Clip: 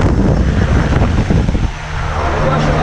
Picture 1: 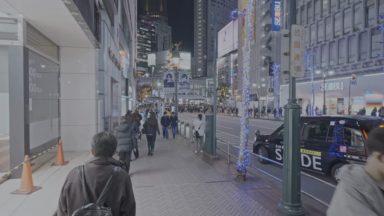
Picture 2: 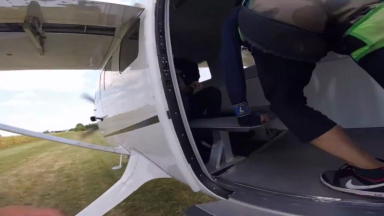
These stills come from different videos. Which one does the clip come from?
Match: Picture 2